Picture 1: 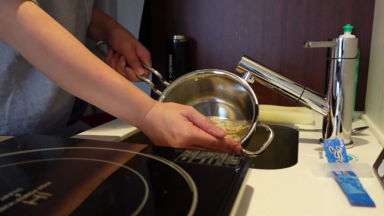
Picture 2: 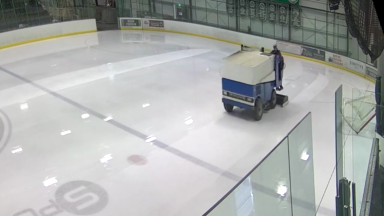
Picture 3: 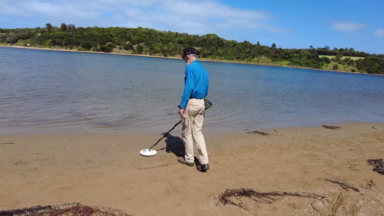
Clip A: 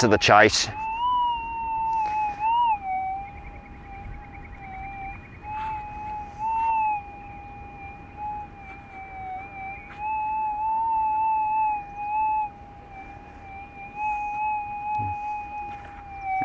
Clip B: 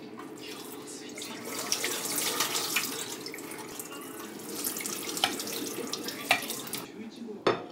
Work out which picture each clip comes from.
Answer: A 3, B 1